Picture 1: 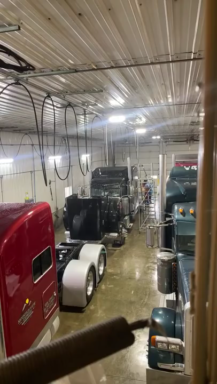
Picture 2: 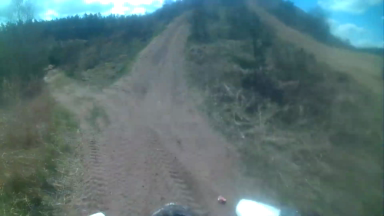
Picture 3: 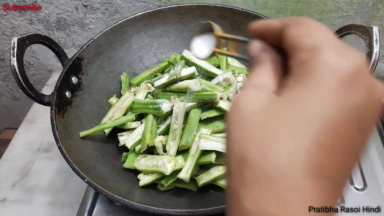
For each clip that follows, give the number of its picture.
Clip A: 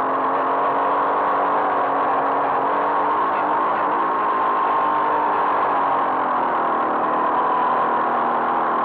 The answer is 2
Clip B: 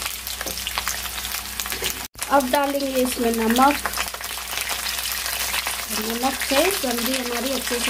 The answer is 3